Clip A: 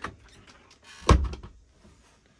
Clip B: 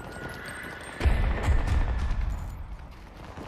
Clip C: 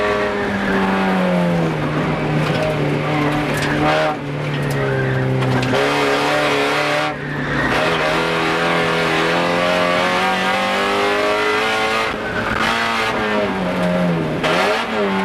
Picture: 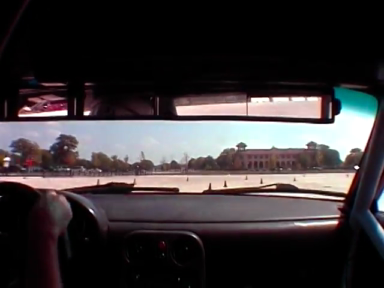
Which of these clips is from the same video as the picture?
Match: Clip C